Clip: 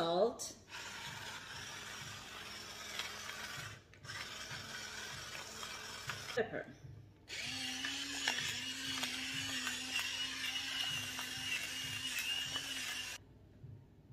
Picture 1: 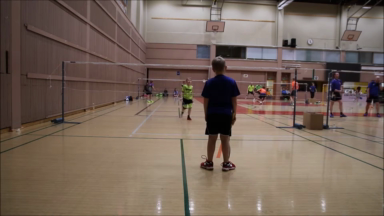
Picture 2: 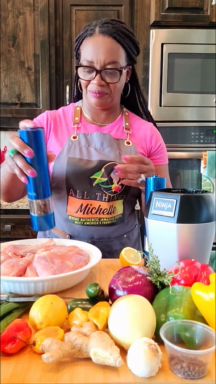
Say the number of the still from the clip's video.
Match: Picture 2